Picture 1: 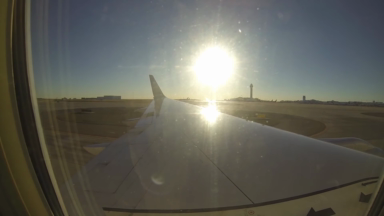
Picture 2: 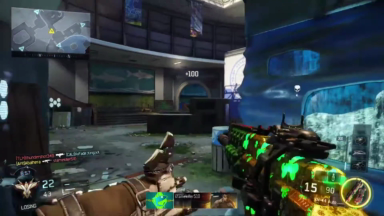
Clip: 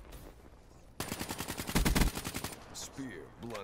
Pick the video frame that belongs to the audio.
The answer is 2